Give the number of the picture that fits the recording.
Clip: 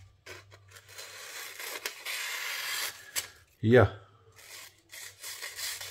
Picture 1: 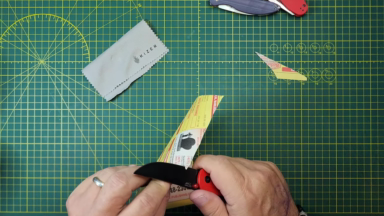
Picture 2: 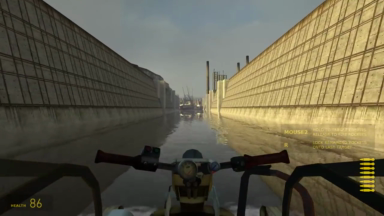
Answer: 1